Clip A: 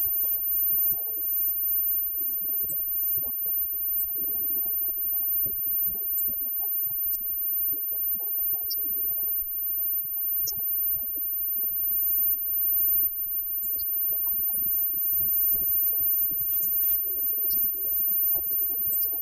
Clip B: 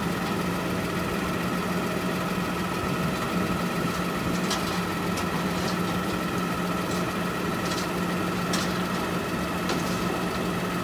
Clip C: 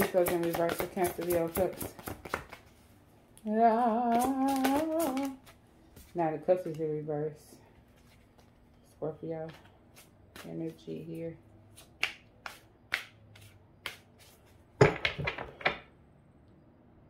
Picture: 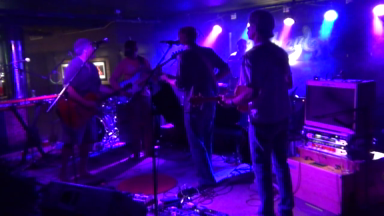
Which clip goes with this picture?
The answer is A